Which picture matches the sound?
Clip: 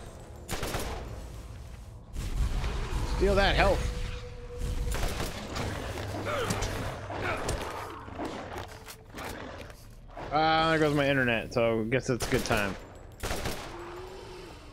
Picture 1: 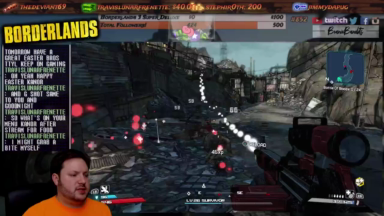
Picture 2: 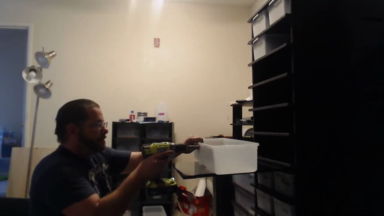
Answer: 1